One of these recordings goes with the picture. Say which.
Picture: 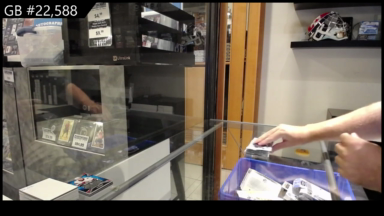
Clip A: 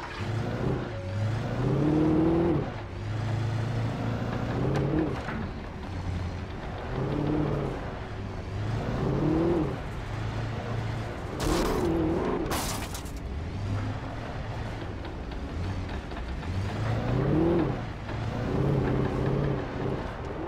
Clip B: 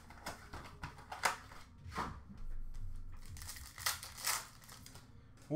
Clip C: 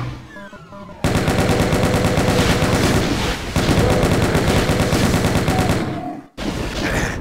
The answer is B